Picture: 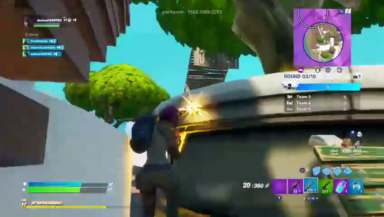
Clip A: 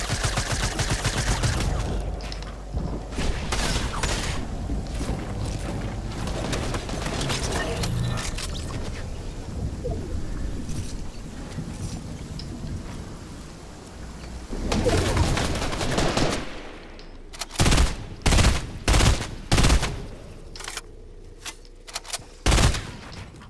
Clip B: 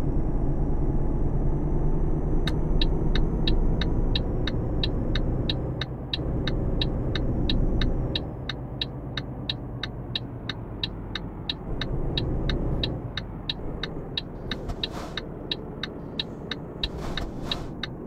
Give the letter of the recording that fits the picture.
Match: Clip A